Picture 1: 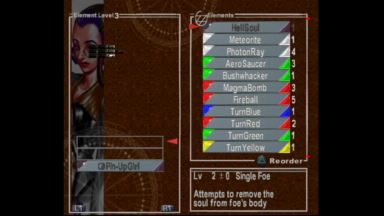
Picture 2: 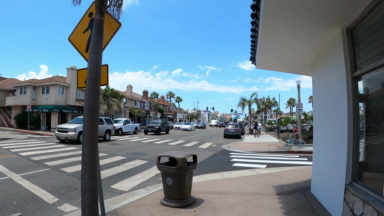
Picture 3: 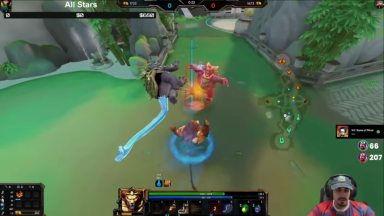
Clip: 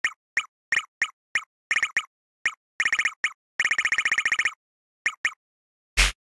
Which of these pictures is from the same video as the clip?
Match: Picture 1